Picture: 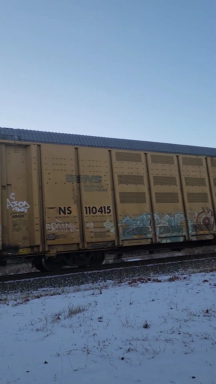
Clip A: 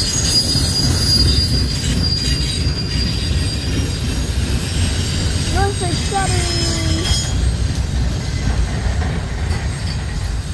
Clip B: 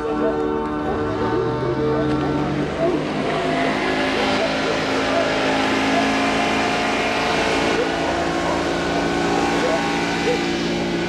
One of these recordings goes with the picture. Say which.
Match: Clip A